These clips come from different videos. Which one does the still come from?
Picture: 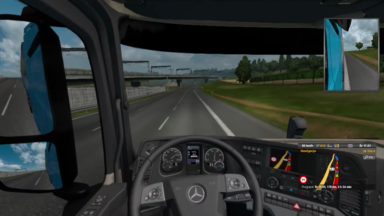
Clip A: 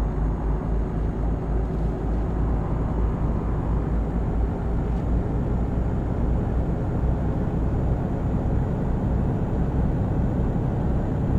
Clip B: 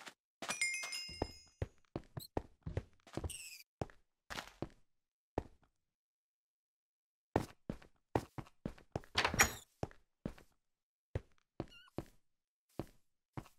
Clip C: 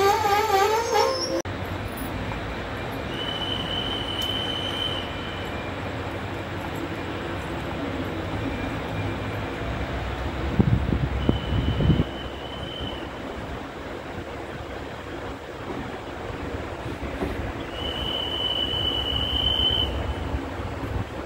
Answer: A